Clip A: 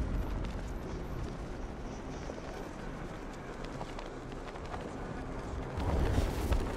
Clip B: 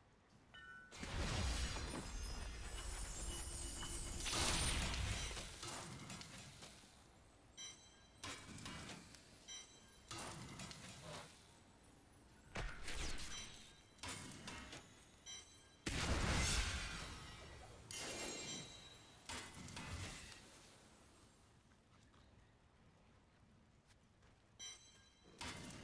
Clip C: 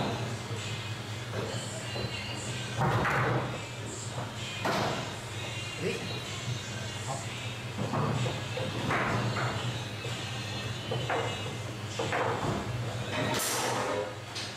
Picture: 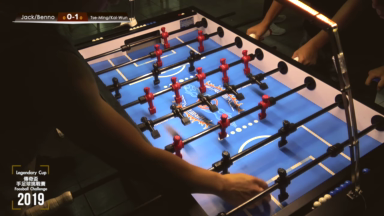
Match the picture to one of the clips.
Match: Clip C